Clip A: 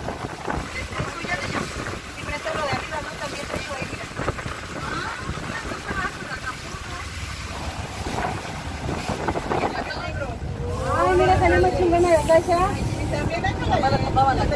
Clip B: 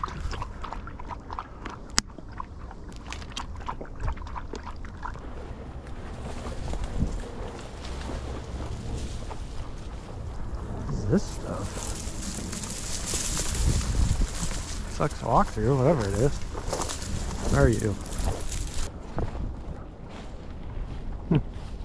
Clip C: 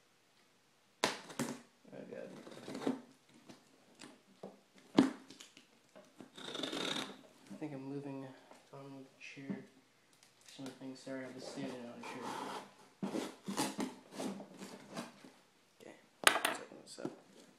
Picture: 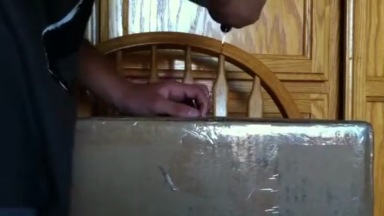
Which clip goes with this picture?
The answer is C